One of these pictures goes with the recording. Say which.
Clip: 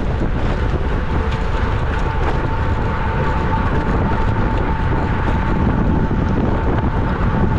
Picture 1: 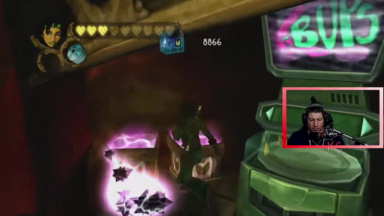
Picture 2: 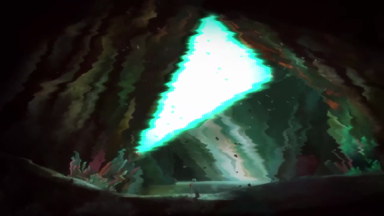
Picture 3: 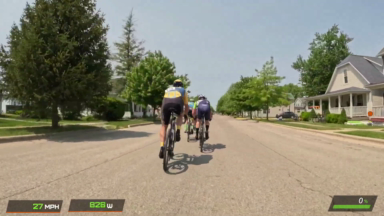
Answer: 3